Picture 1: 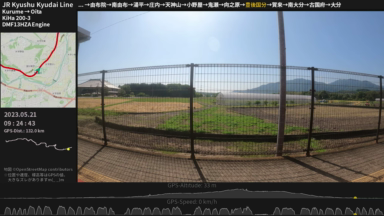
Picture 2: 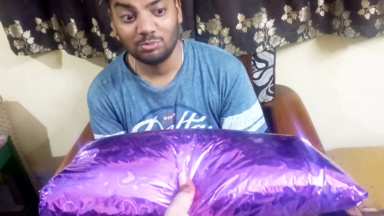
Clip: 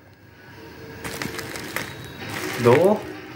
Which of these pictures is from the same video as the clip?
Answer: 2